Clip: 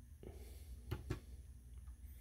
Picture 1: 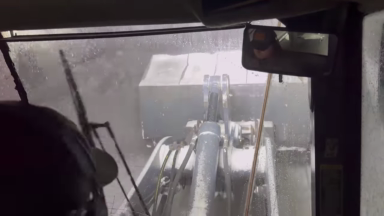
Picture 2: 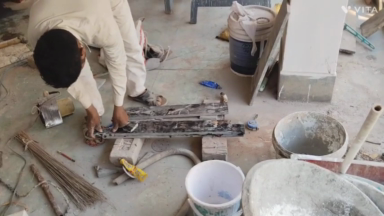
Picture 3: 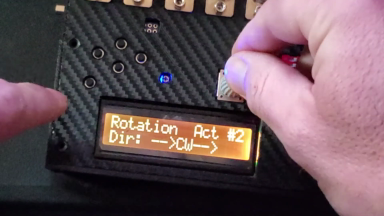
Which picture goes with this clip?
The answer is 3